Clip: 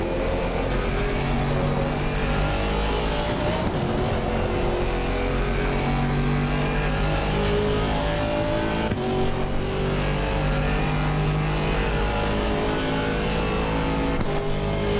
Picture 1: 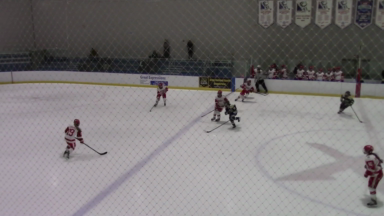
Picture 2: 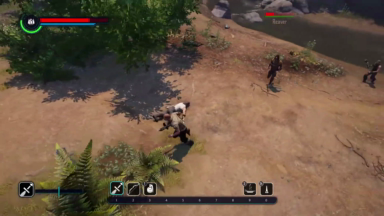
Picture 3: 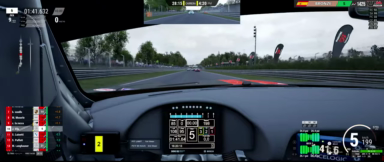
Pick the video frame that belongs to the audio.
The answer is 3